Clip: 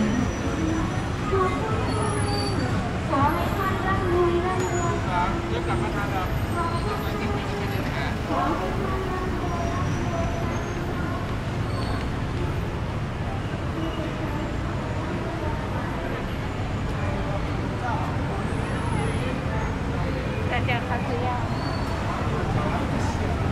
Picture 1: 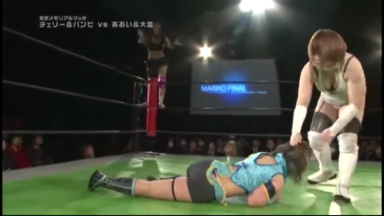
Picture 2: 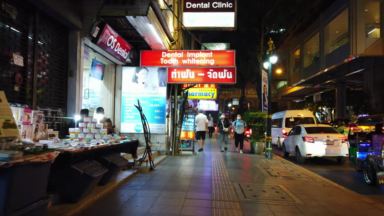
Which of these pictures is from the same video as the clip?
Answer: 2